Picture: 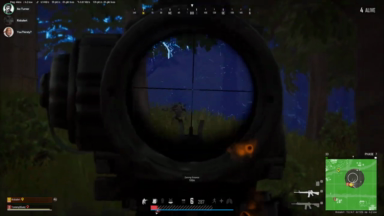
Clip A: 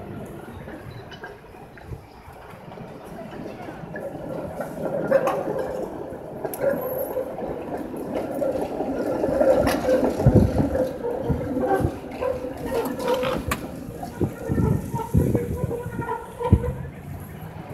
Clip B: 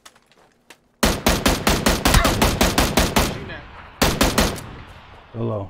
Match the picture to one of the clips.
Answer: B